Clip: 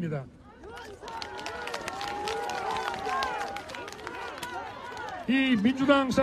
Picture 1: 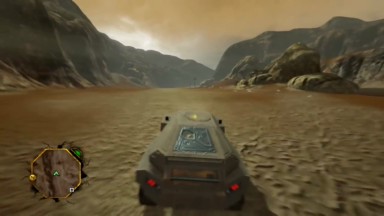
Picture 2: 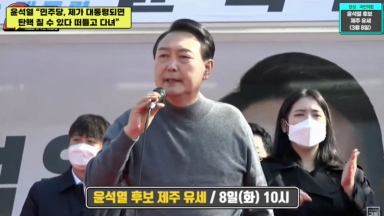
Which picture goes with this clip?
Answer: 2